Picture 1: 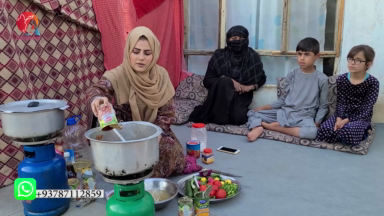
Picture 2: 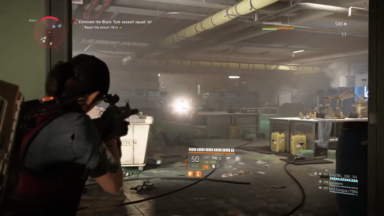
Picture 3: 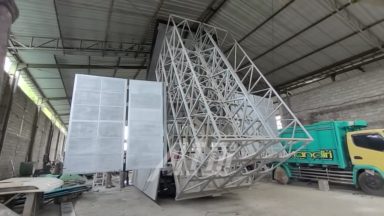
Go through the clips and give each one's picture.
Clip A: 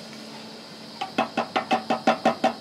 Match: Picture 1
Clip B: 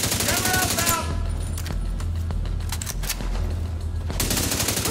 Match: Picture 2